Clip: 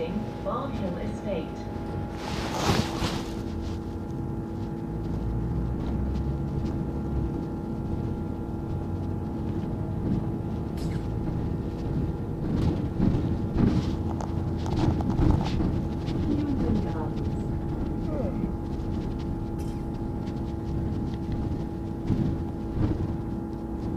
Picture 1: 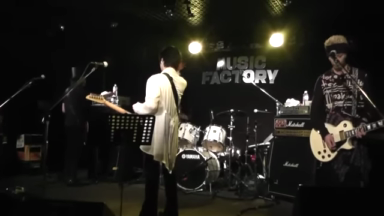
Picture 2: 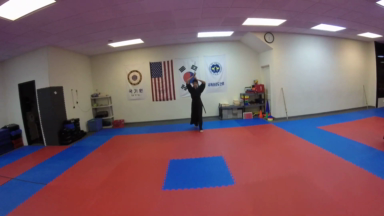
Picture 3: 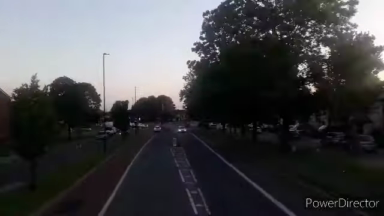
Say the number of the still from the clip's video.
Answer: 3